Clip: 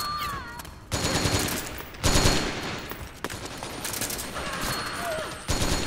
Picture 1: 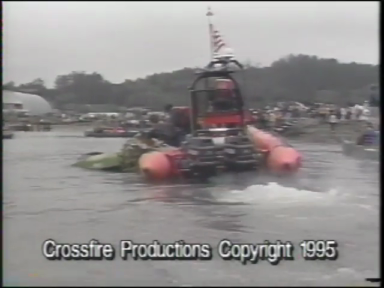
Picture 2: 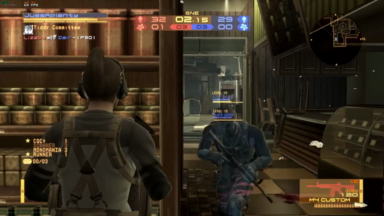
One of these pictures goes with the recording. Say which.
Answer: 2